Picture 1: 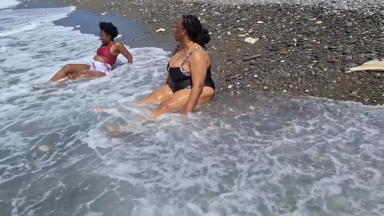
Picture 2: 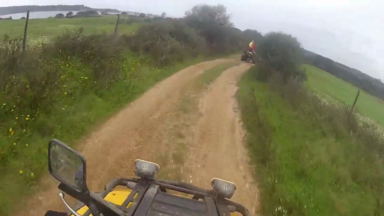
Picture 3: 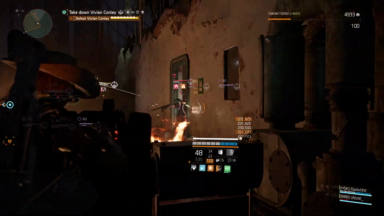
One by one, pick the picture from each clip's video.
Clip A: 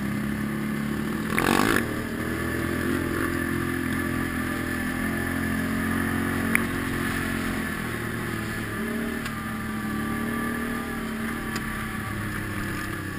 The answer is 2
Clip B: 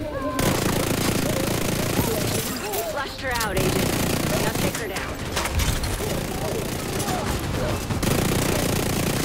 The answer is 3